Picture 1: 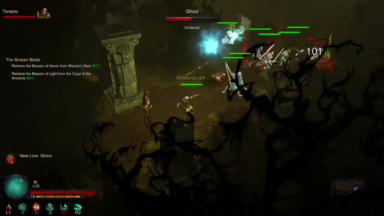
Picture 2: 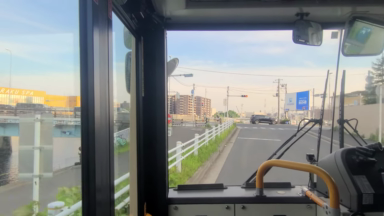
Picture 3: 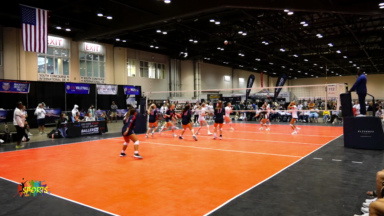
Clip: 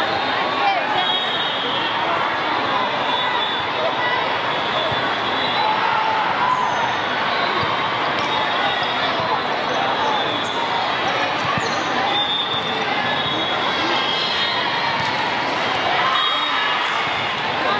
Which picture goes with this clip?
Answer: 3